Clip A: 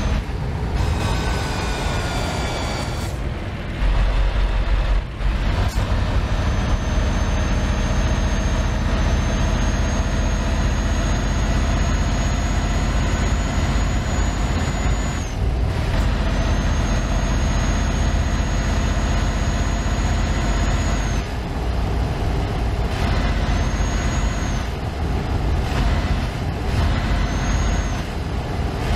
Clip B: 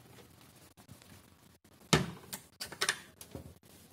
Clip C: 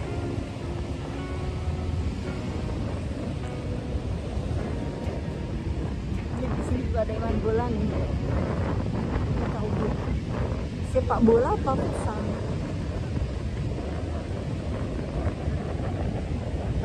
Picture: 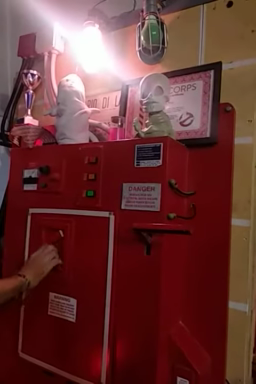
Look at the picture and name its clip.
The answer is B